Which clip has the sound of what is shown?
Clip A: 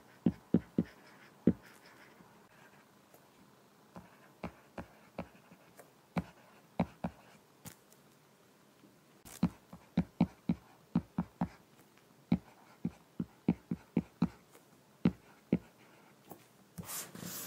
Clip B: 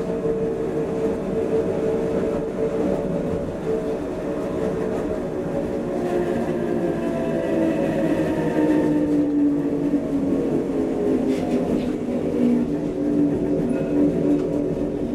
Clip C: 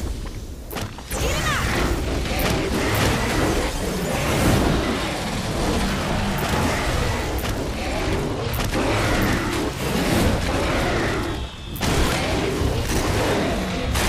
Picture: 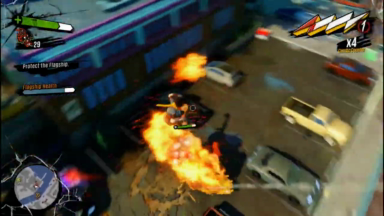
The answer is C